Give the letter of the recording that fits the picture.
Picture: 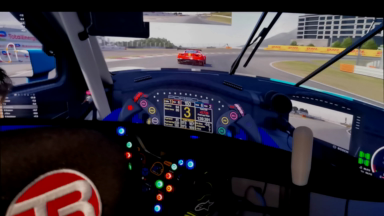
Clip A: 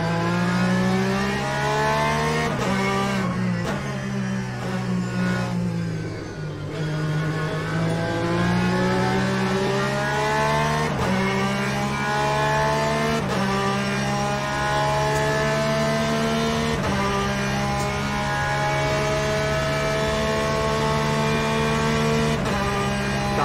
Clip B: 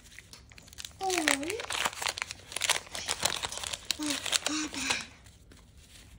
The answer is A